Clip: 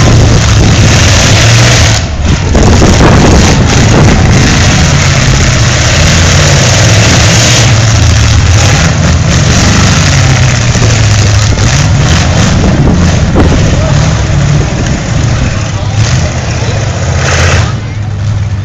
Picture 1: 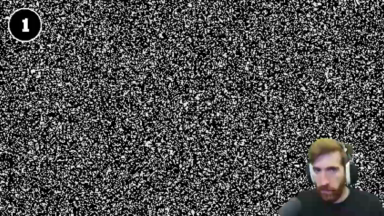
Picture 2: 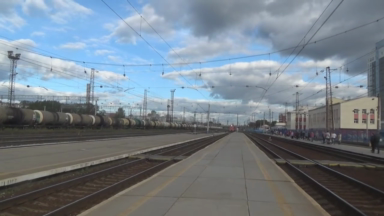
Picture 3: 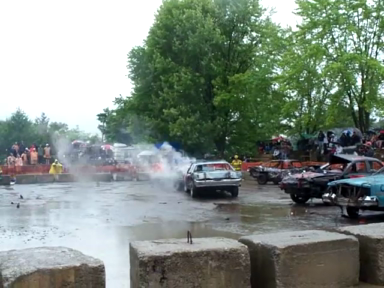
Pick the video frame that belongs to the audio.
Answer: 3